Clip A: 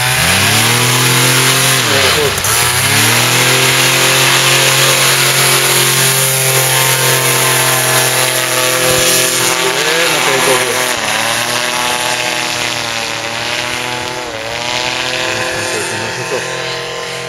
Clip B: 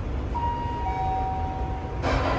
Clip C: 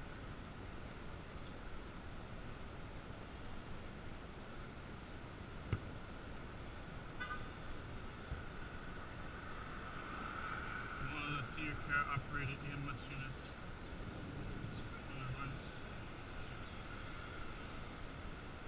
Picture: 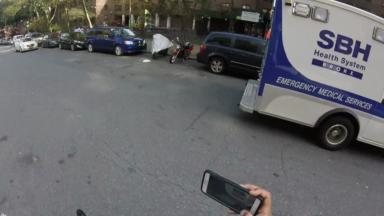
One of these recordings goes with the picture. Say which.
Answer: C